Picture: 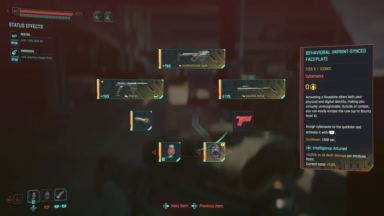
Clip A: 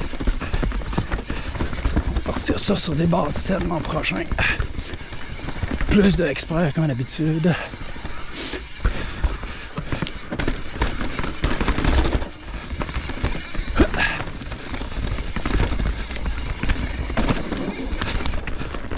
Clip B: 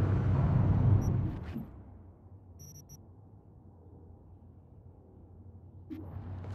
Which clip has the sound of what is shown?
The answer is B